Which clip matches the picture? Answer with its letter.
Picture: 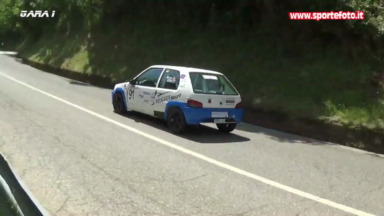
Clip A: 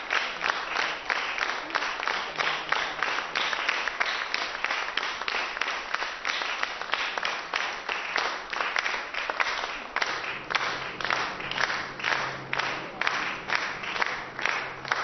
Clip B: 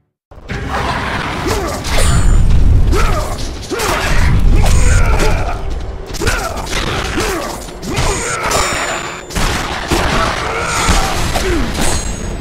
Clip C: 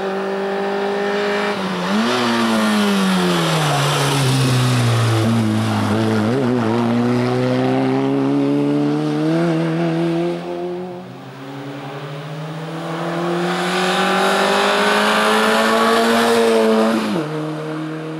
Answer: C